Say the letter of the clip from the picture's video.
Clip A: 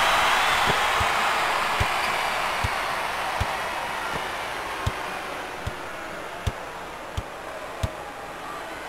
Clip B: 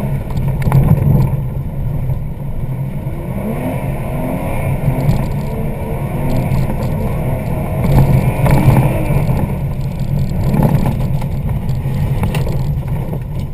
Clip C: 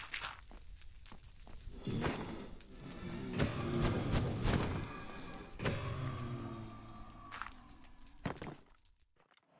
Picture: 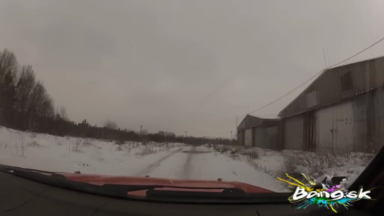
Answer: B